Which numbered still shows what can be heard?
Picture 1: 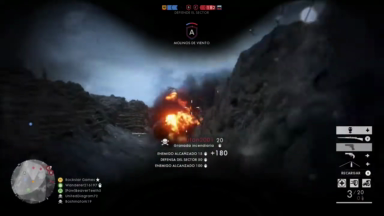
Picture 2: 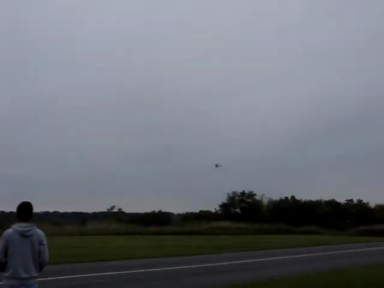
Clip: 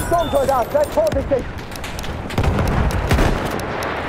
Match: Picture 1